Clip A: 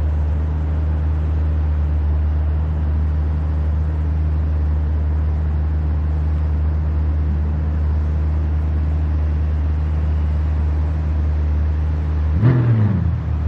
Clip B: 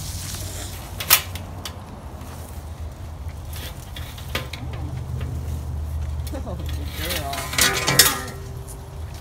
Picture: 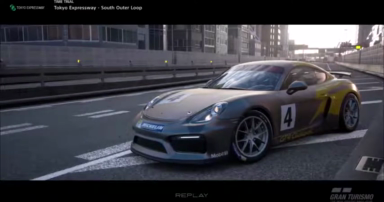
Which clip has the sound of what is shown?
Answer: A